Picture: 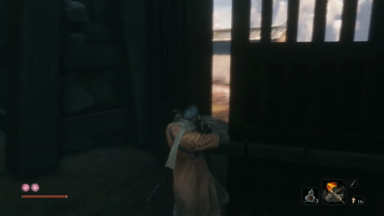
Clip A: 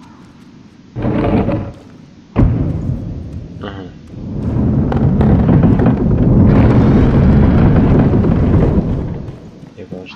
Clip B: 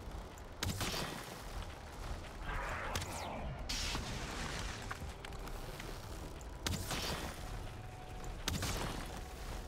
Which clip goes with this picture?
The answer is A